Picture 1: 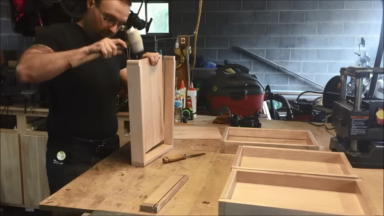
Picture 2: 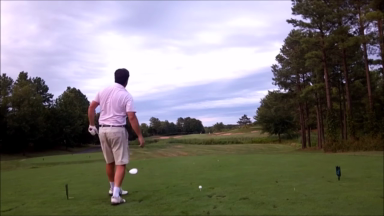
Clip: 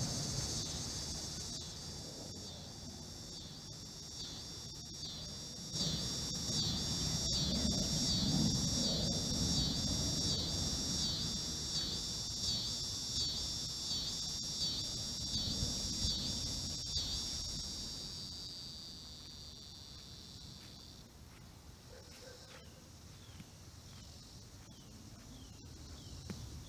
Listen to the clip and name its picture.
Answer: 2